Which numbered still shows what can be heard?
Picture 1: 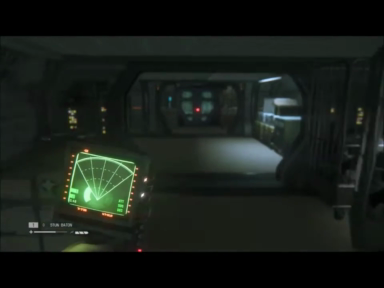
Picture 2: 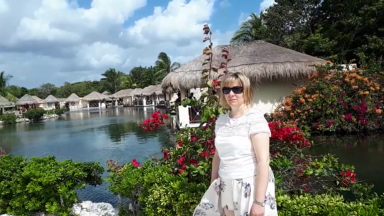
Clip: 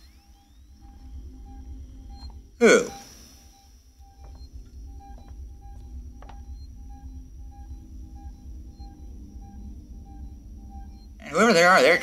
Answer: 1